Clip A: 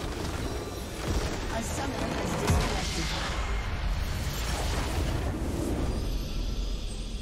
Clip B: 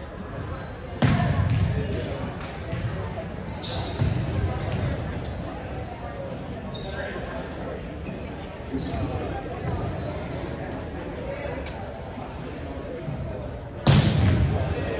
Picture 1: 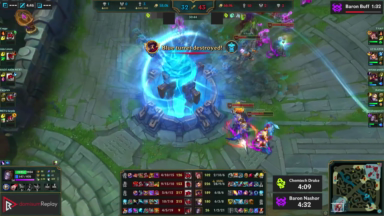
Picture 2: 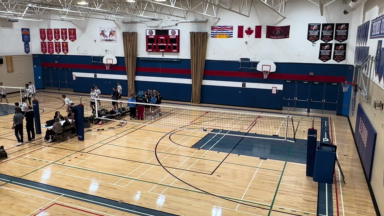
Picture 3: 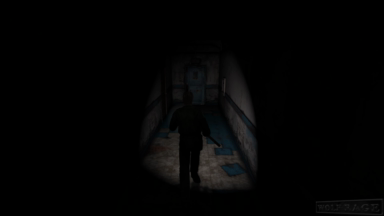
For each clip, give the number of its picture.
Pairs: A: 1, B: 2